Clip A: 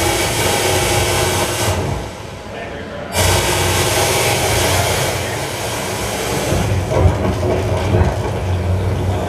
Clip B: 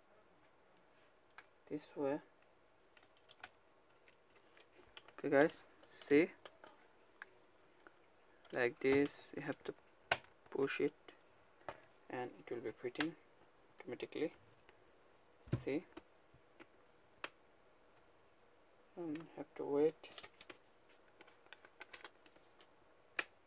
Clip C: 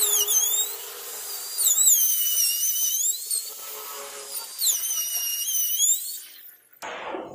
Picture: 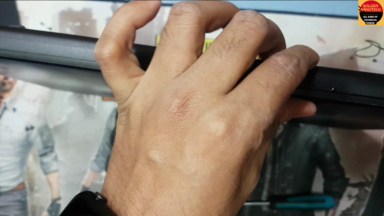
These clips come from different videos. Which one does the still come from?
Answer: B